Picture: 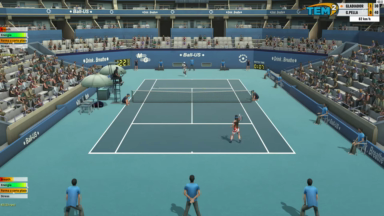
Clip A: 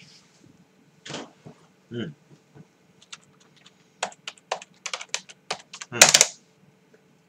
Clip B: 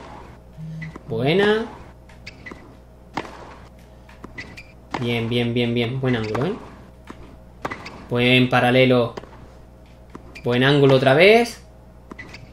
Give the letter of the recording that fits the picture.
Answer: B